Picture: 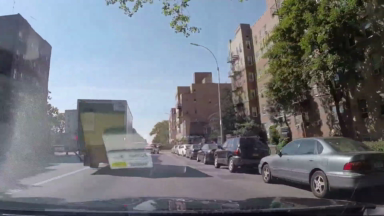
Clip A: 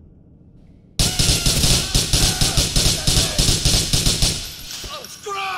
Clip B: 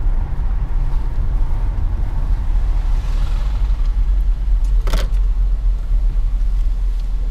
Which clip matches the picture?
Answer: B